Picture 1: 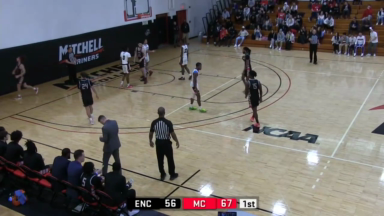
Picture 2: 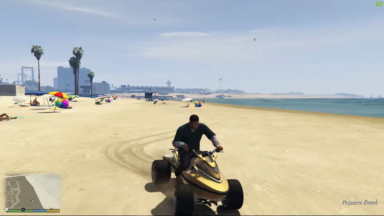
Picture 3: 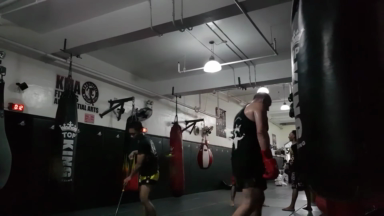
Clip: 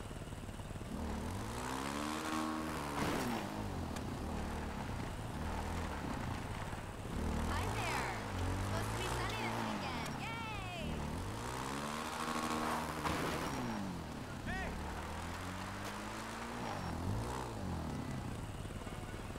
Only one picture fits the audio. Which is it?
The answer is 2